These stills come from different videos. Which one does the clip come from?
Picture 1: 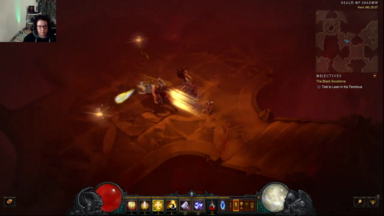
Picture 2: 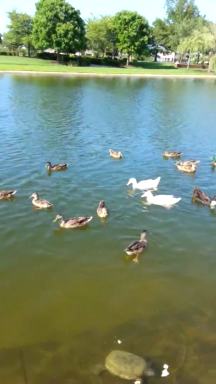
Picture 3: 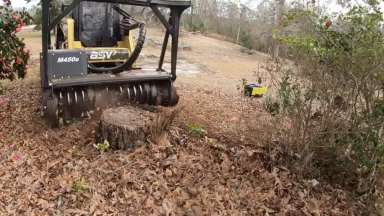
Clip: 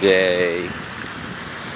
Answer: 2